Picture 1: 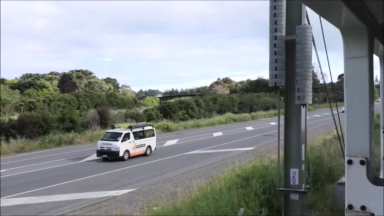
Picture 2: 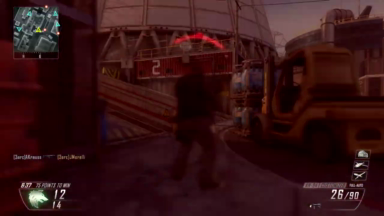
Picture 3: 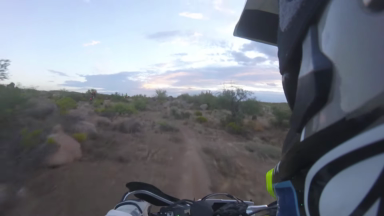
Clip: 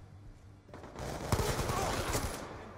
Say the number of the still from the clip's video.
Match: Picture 2